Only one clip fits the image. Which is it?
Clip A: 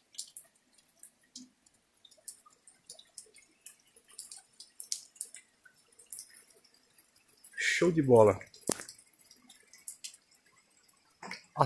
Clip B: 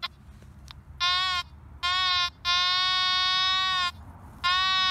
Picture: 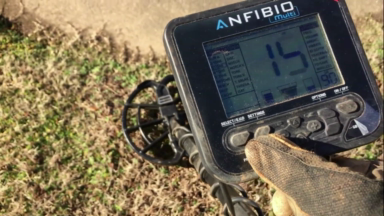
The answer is B